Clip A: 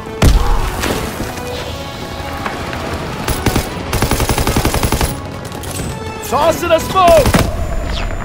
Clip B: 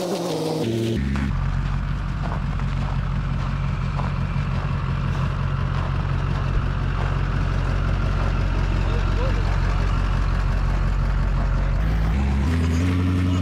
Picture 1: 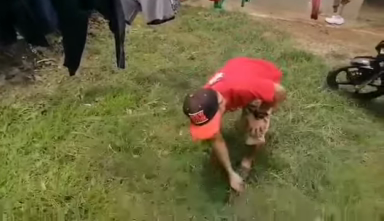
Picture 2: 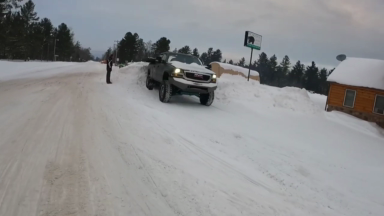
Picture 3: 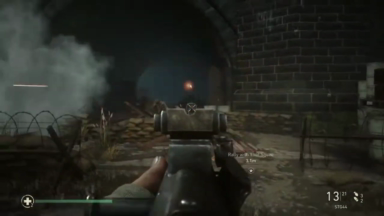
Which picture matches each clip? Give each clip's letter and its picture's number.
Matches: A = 3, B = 2